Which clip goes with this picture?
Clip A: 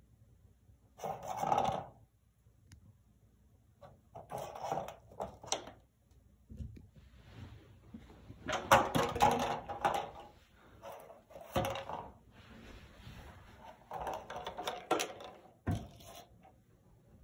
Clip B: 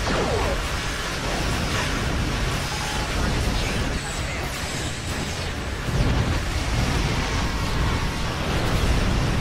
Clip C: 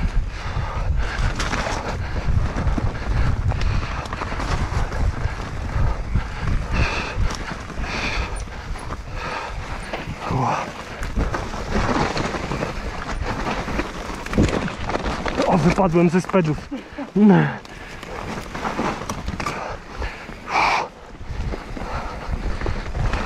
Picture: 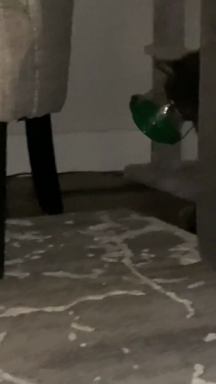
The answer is A